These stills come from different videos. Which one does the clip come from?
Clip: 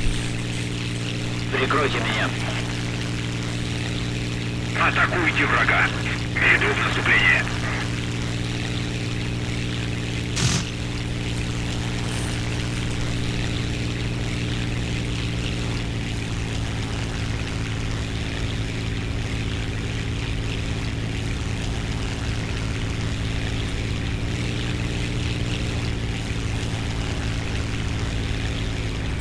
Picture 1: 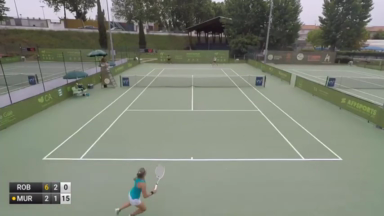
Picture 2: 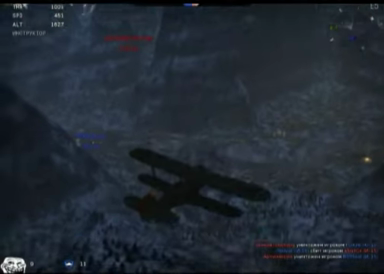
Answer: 2